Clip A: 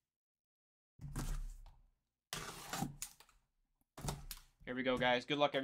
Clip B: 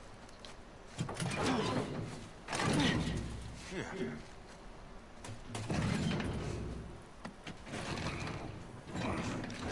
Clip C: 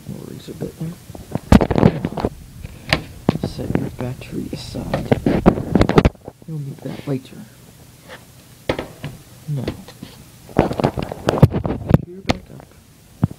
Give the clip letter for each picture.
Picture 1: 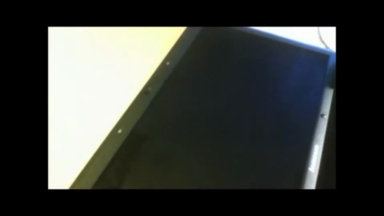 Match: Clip C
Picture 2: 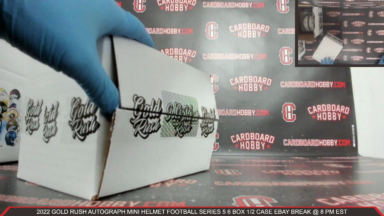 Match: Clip A